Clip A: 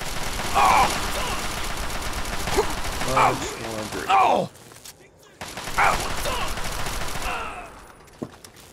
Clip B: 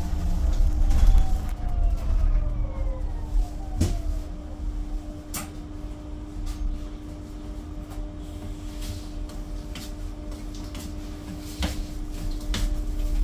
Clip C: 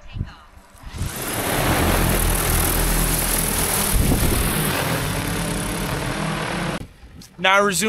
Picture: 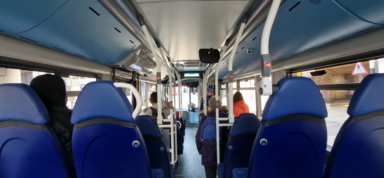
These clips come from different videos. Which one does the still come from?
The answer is B